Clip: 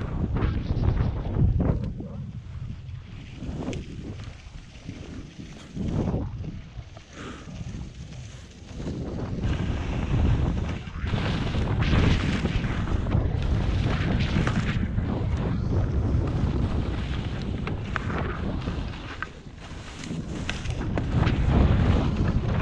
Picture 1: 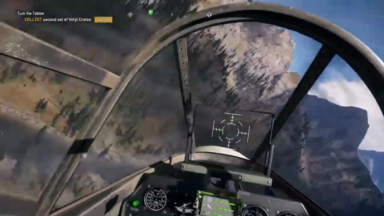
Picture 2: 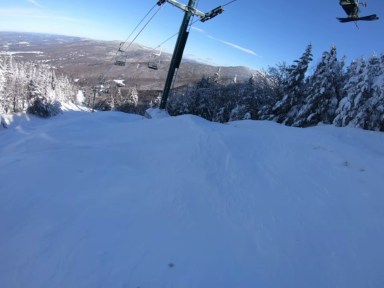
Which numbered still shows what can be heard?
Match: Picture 2